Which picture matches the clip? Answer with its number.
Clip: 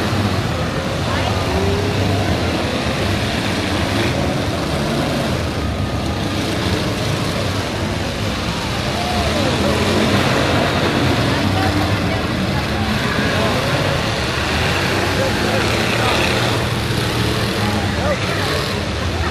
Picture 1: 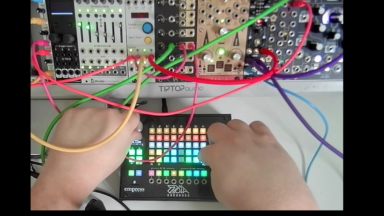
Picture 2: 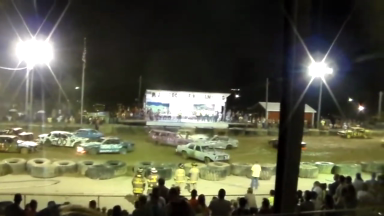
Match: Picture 2